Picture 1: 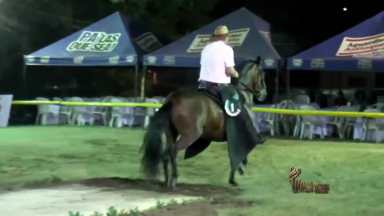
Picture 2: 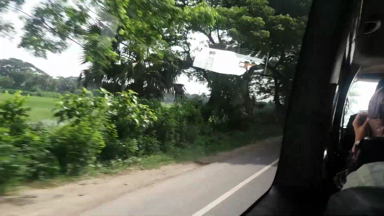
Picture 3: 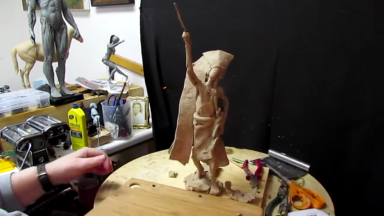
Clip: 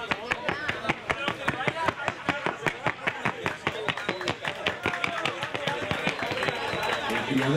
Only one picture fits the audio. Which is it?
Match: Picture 1